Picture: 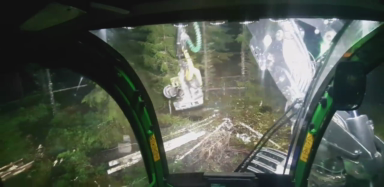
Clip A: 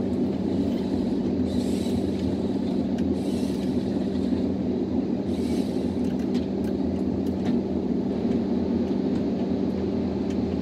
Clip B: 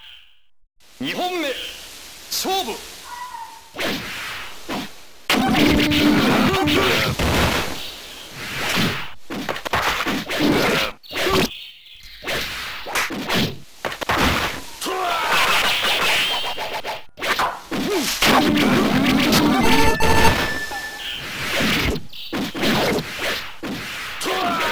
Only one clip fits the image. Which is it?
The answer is A